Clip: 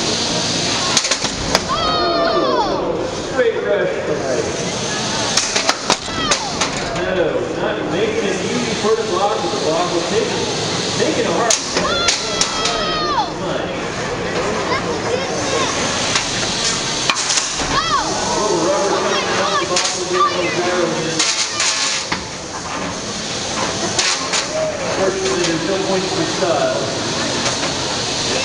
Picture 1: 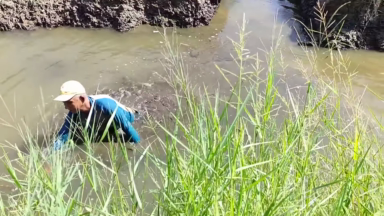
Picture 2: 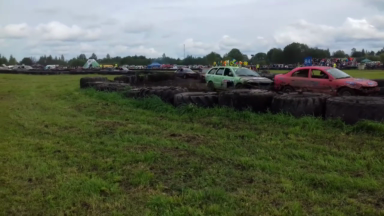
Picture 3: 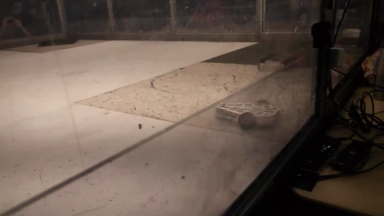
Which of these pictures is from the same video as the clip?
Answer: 3